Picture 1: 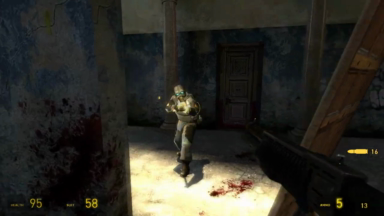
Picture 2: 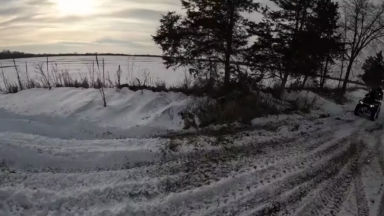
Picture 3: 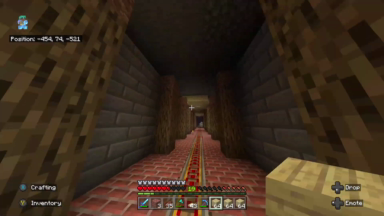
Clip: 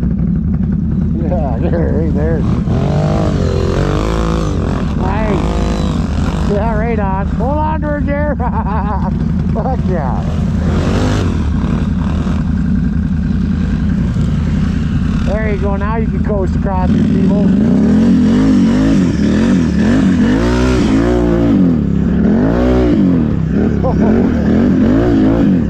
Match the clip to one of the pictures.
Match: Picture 2